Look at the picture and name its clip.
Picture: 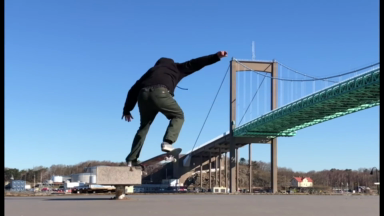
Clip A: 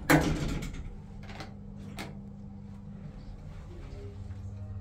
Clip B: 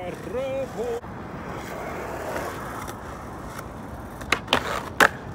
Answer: B